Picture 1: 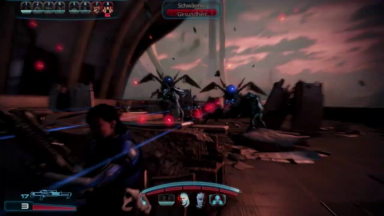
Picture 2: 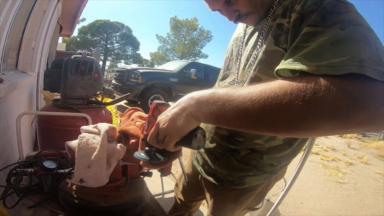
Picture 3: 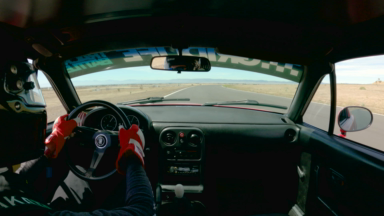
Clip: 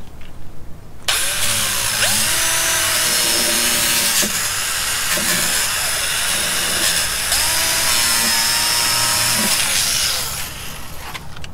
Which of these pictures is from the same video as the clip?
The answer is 2